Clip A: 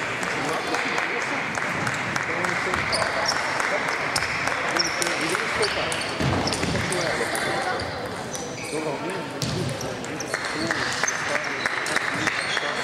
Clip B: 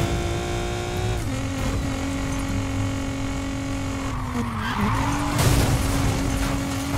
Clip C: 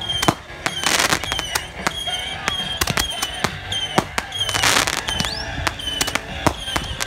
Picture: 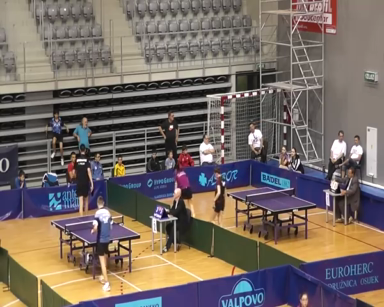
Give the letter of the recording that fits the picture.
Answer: A